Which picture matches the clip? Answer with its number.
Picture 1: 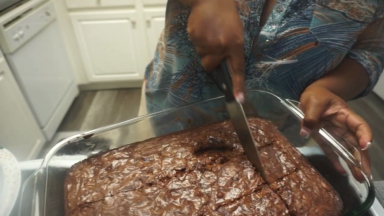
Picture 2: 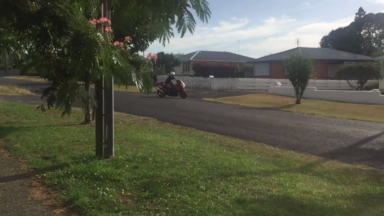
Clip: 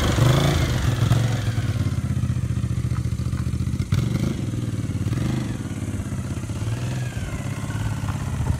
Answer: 2